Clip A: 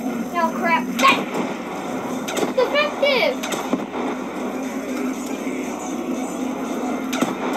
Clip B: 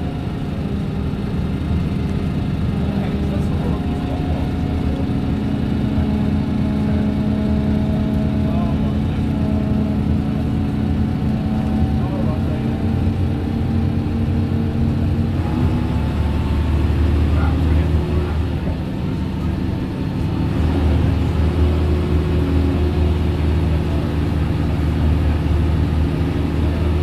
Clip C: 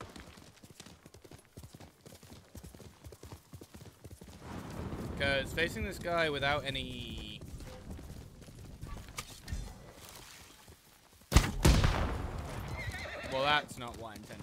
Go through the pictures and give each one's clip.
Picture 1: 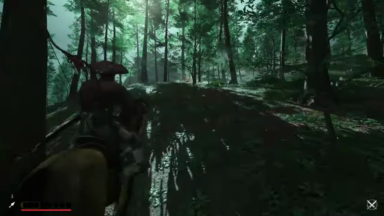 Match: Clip C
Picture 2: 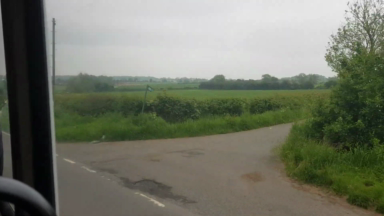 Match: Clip B